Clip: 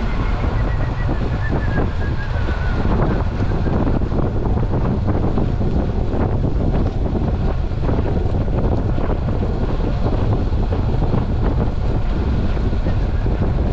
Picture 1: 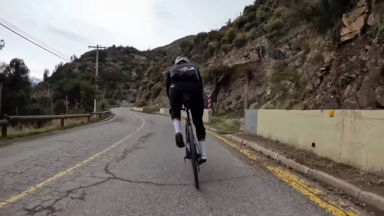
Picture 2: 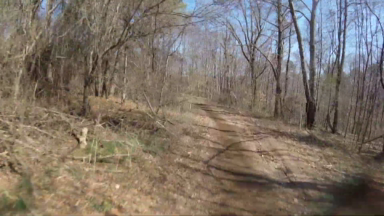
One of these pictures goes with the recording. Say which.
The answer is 1